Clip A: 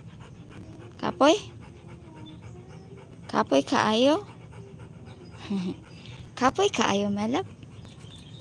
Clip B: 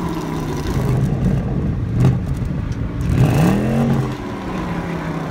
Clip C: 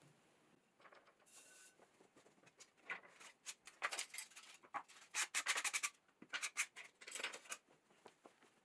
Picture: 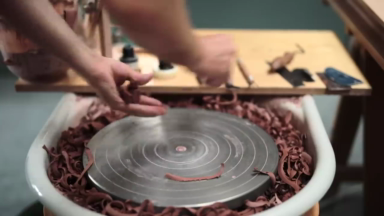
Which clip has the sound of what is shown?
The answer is C